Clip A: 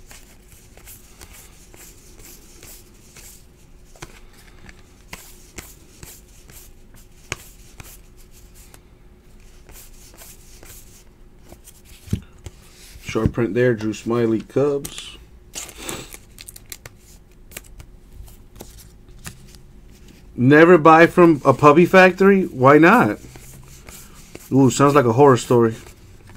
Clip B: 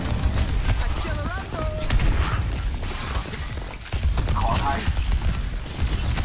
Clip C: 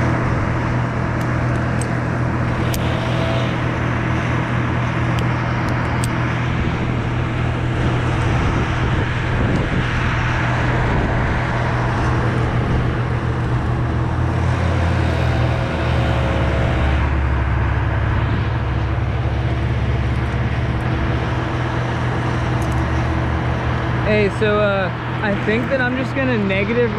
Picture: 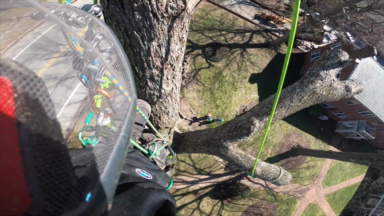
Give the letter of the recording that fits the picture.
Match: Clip C